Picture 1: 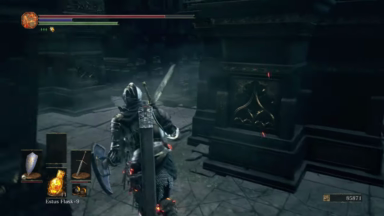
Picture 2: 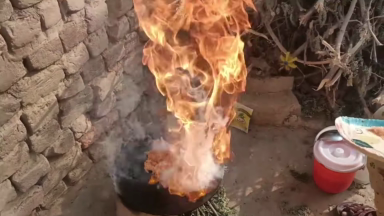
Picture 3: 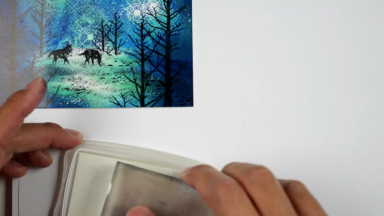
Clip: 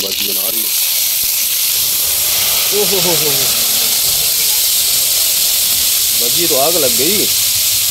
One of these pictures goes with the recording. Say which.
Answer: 2